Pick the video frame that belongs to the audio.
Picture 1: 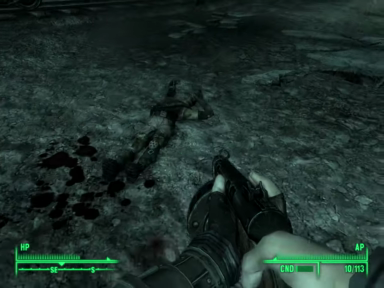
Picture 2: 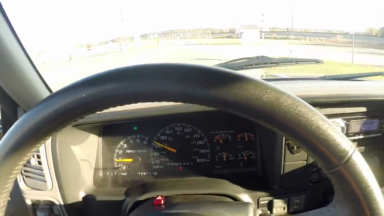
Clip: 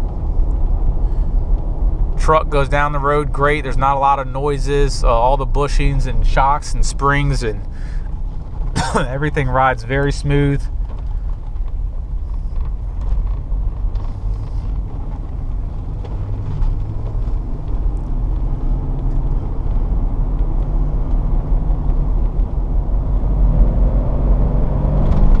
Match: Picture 2